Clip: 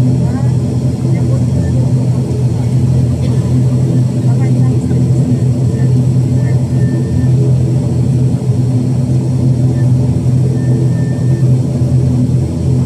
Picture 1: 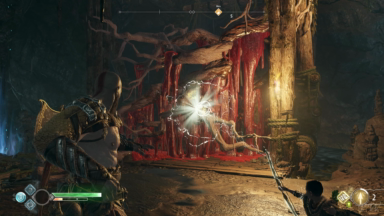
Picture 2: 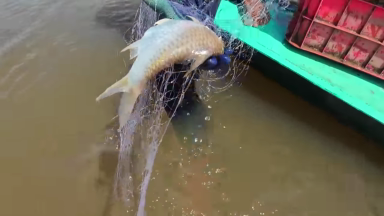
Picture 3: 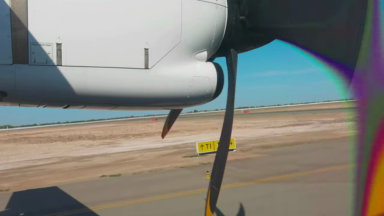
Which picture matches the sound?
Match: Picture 3